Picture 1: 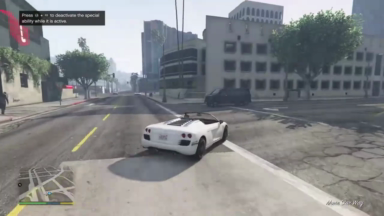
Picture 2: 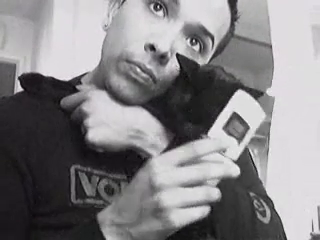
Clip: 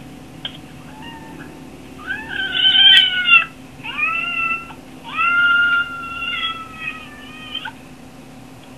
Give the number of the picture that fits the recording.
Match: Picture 2